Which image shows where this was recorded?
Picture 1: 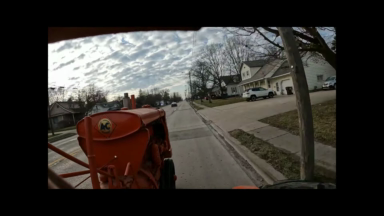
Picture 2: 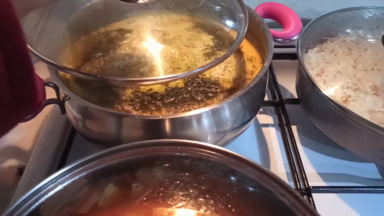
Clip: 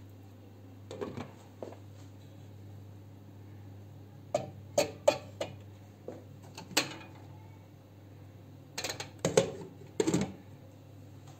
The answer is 2